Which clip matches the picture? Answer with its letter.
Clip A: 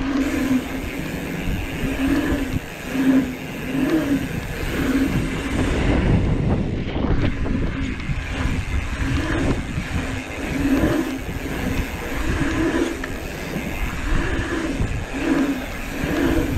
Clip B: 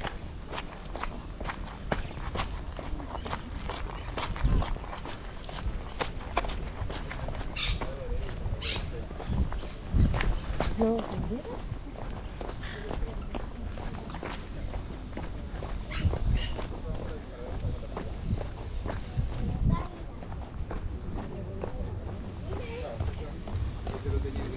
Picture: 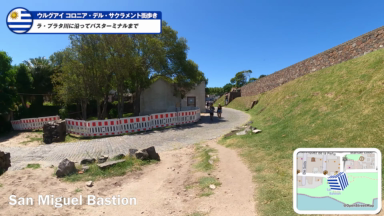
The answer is B